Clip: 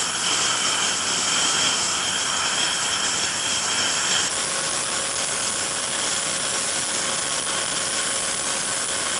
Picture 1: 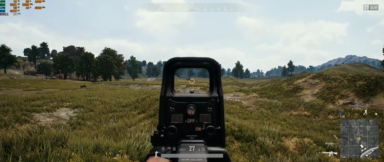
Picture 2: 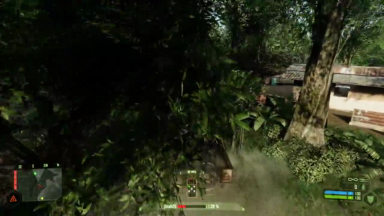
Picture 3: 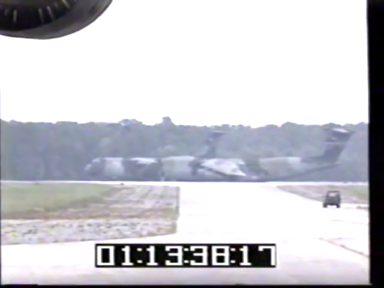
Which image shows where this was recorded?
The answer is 3